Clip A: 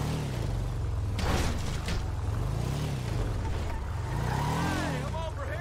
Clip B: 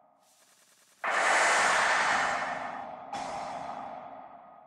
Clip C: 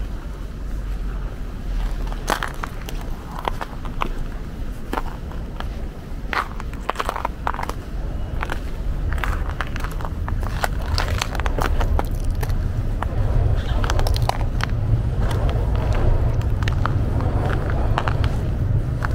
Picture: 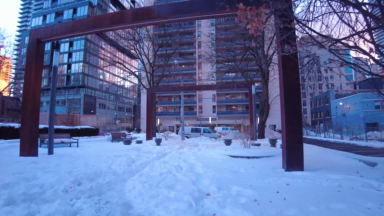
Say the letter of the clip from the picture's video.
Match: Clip C